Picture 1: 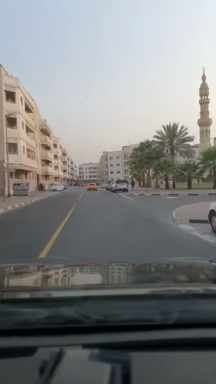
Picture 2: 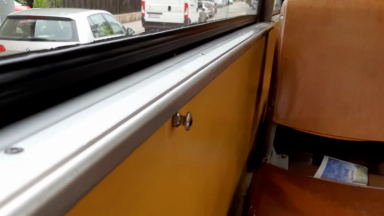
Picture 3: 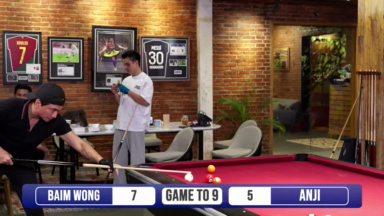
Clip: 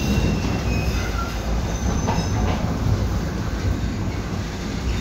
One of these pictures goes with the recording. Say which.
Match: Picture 2